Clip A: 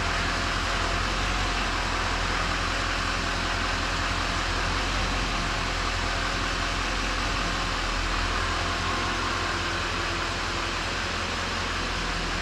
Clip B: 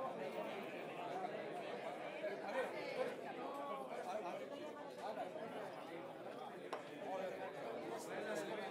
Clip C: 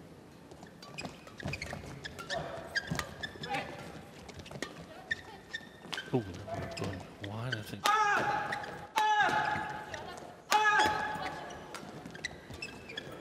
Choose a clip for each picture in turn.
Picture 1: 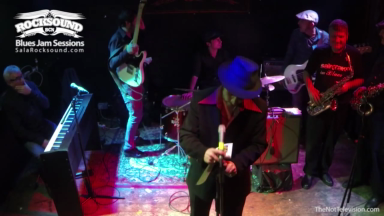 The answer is B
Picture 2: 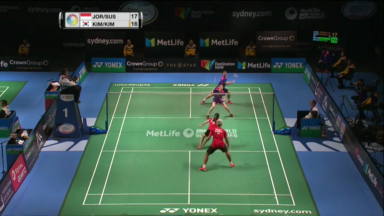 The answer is C